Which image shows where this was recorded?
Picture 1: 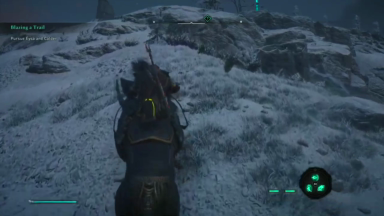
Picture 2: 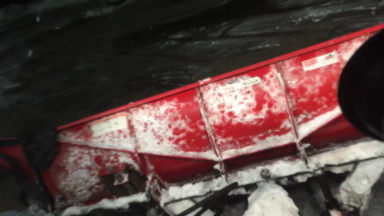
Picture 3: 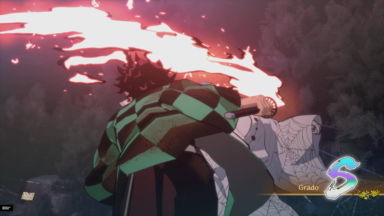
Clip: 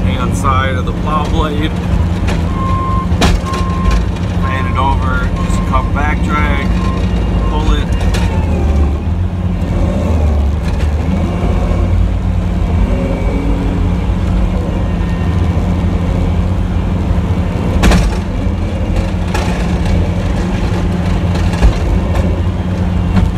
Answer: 2